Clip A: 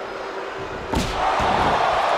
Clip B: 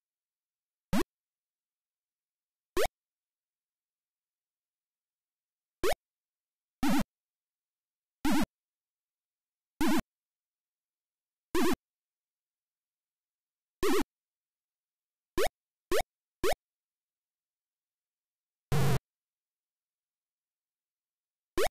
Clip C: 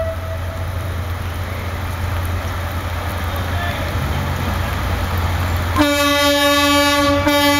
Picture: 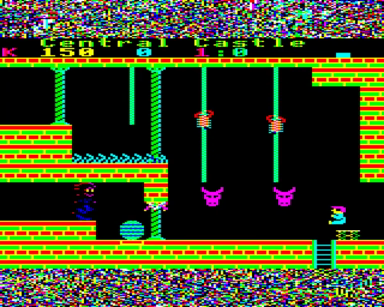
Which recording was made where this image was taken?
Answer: B